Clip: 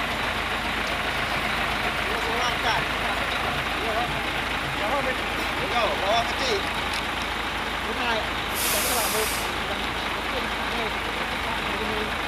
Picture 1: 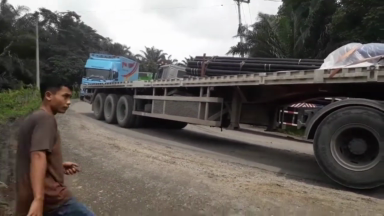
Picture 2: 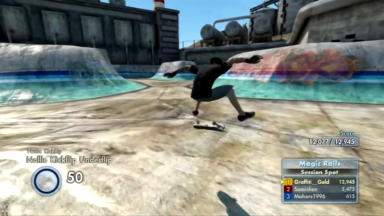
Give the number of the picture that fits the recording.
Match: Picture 1